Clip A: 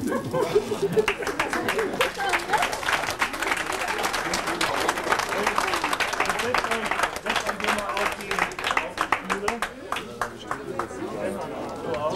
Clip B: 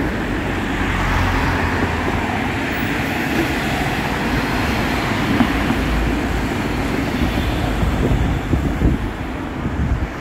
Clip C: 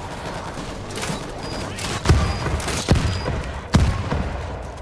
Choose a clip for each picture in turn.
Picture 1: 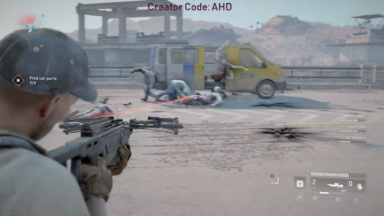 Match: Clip C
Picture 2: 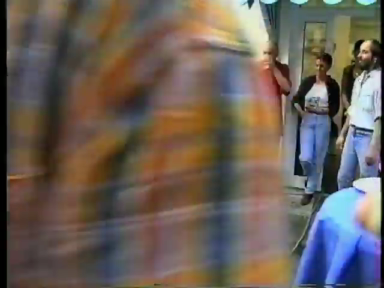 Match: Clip A